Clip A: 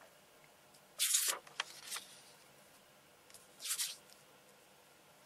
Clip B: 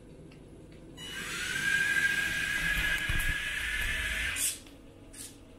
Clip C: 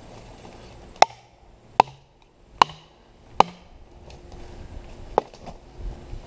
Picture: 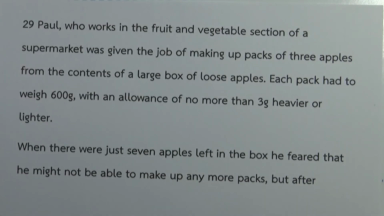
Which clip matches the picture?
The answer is A